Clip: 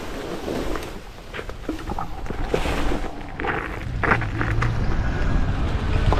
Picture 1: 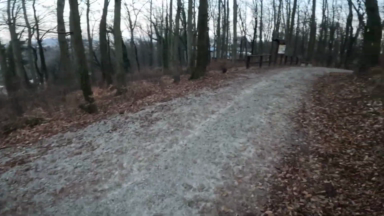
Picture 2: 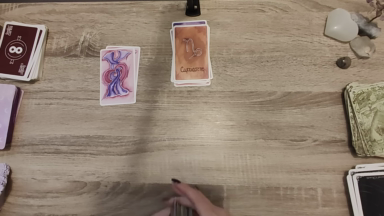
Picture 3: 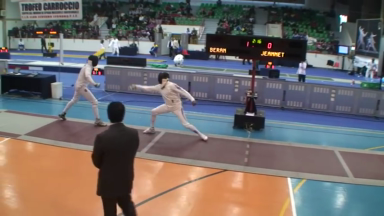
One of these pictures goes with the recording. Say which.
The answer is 1